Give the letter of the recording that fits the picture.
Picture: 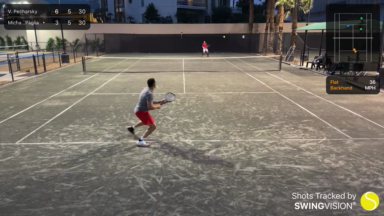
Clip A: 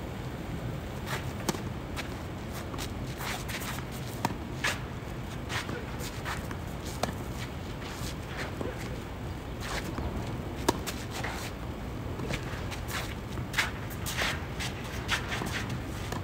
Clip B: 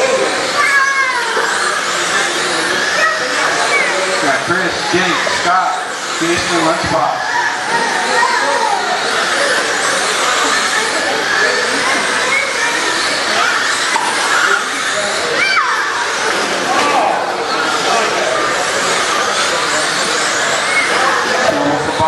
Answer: A